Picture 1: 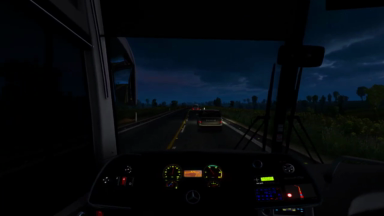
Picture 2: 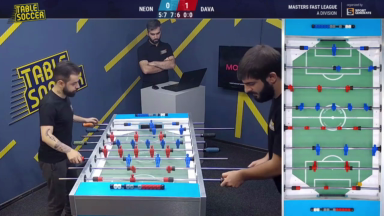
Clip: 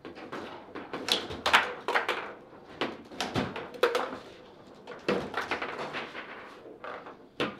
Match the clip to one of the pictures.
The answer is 2